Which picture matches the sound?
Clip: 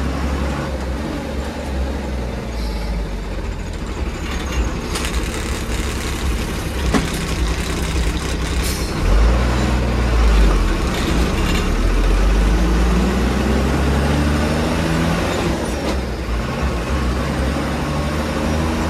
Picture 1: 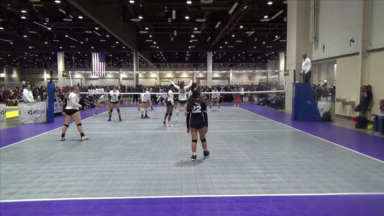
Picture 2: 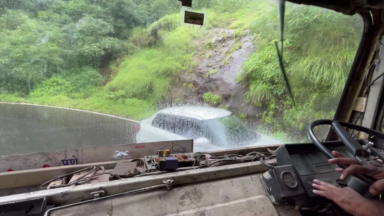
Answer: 2